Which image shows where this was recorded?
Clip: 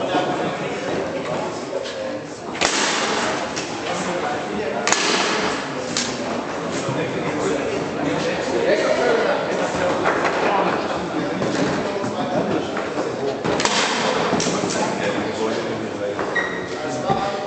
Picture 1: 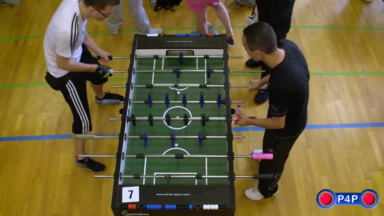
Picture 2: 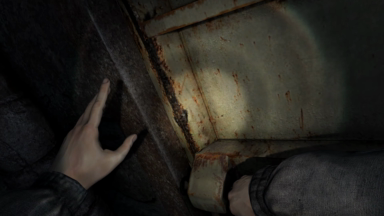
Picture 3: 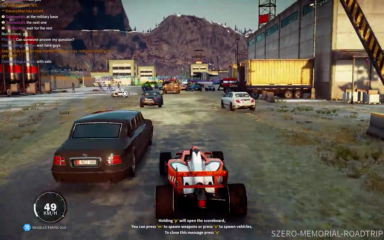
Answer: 1